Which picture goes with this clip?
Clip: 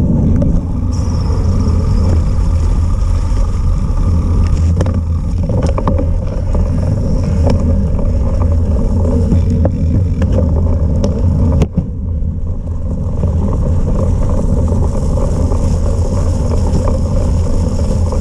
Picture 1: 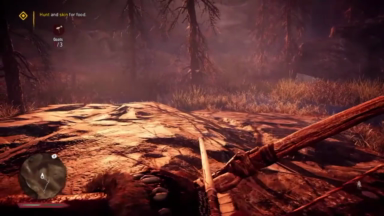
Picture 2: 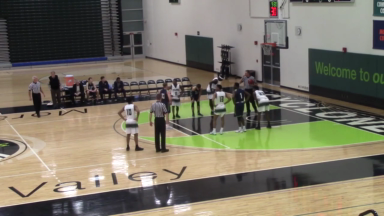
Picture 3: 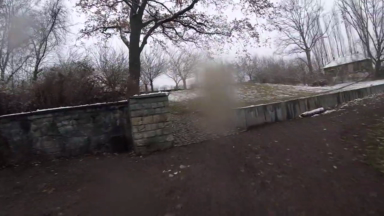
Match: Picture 3